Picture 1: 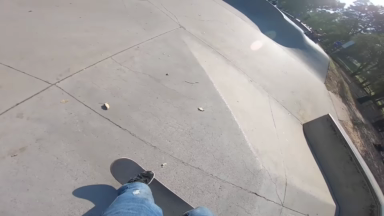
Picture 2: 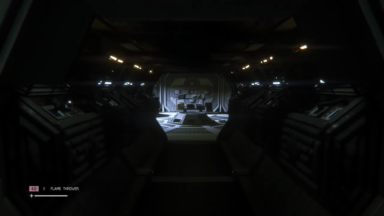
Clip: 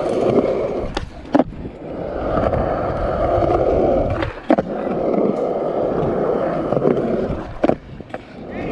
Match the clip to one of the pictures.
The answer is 1